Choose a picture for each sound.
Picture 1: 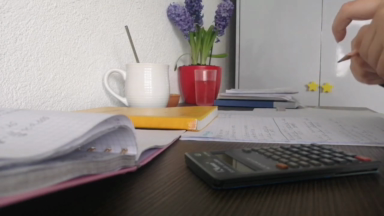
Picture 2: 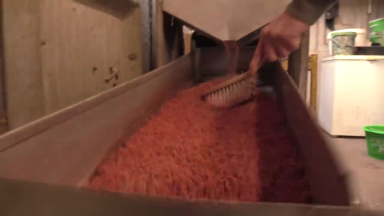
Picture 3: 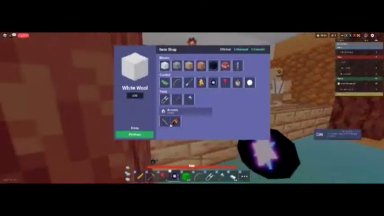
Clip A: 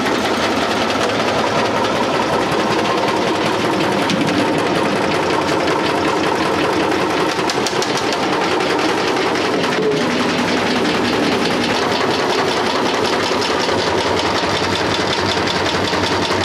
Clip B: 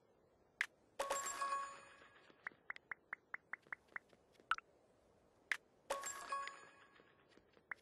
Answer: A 2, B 3